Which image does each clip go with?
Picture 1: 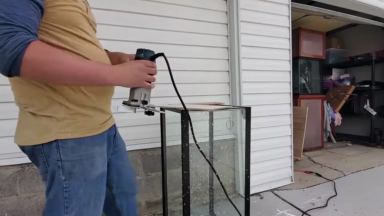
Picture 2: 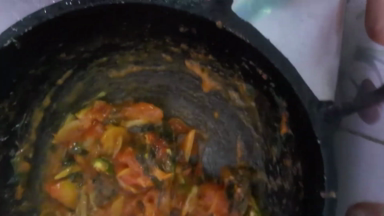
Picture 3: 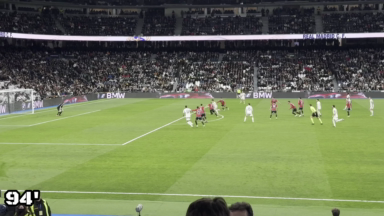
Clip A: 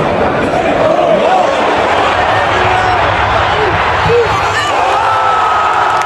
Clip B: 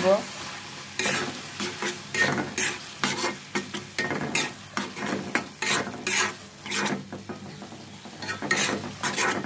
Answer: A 3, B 2